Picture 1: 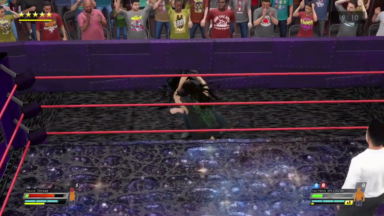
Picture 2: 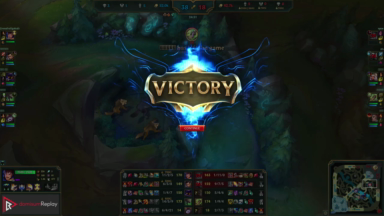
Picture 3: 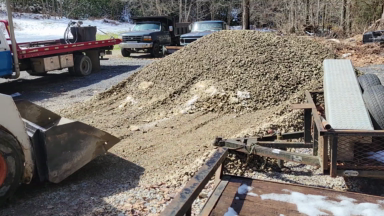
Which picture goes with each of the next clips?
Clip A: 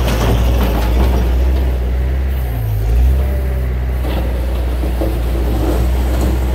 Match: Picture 3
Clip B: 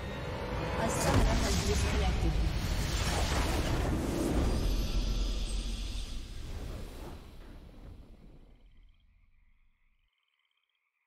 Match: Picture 2